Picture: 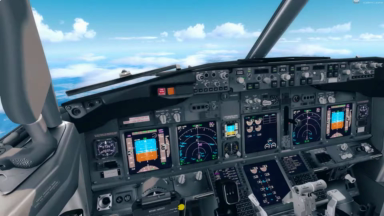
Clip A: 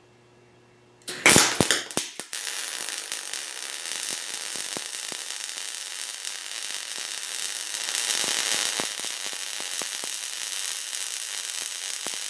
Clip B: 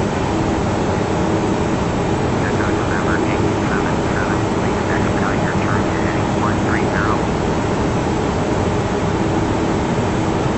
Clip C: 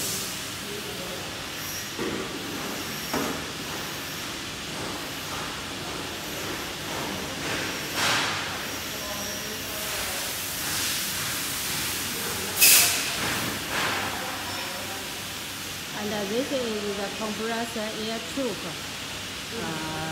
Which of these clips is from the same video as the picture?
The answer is B